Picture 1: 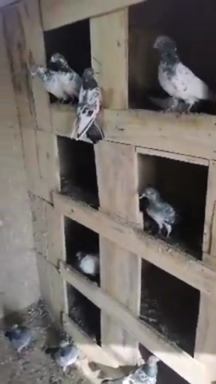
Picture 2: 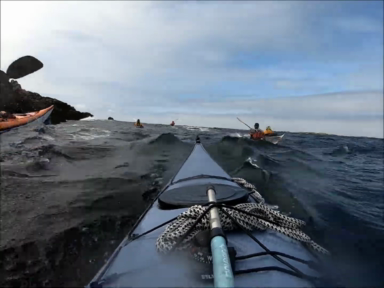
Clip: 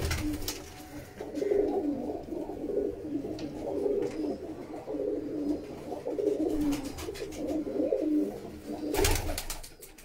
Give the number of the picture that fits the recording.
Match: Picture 1